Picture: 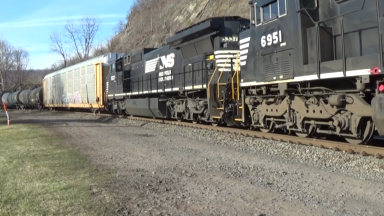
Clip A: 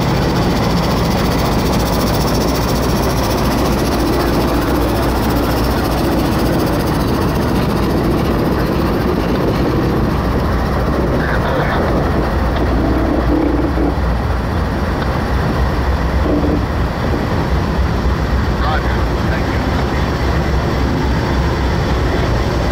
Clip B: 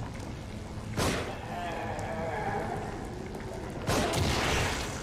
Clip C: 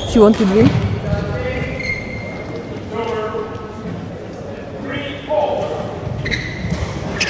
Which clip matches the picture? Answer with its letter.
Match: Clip A